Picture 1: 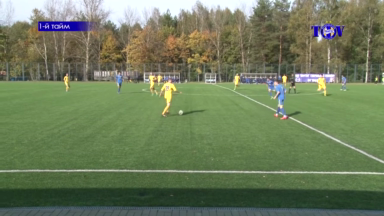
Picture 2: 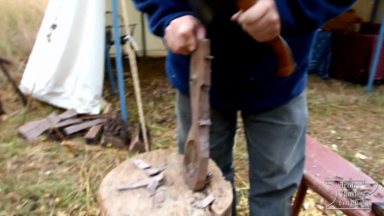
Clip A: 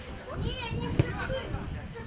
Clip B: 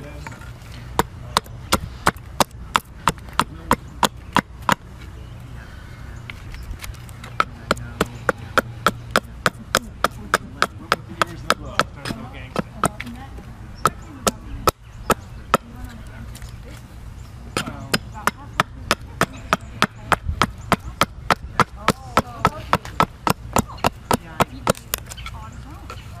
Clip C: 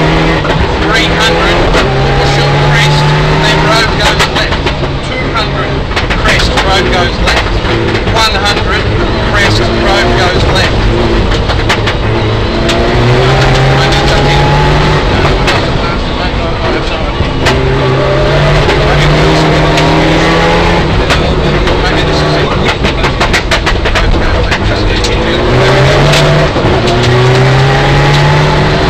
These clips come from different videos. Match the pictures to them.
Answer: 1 A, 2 B